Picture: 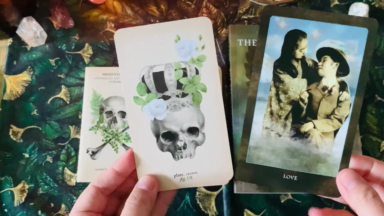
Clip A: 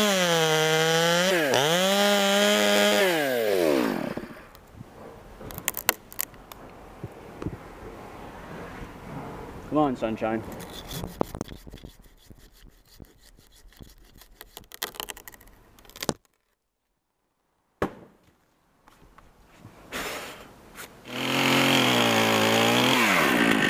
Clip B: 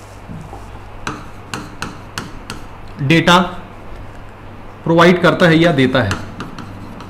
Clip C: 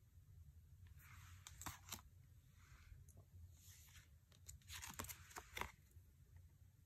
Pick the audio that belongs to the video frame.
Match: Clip C